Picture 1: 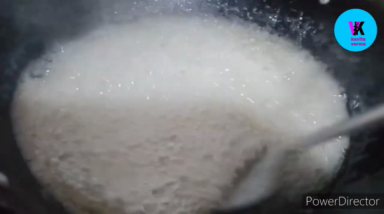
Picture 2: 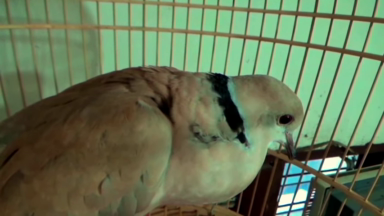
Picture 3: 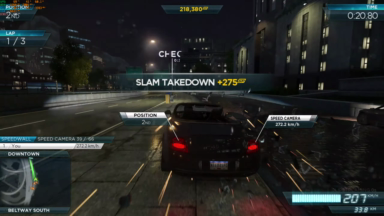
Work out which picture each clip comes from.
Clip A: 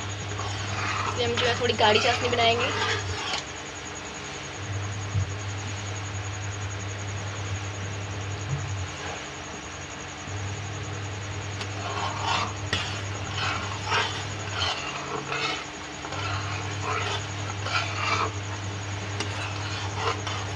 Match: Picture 1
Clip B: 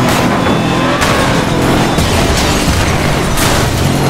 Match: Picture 3